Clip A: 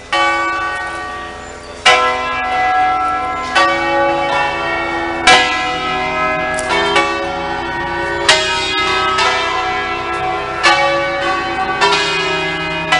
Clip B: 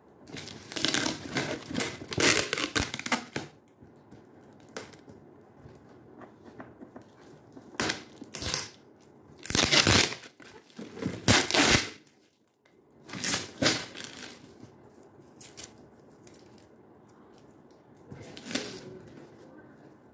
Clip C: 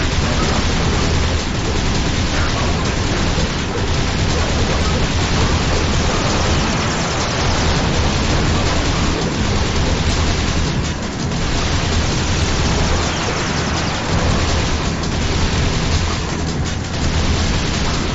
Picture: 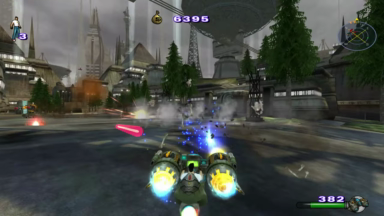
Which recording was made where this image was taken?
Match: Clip C